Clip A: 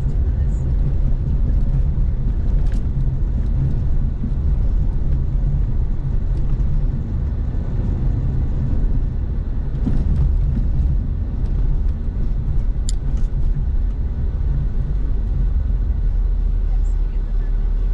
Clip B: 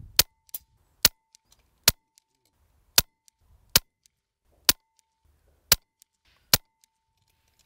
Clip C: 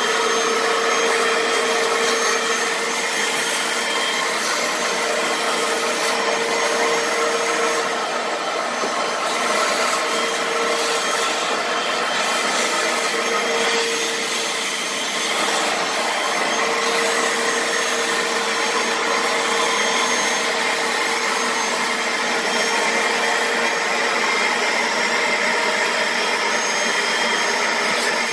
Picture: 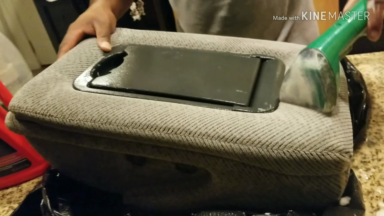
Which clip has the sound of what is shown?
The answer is C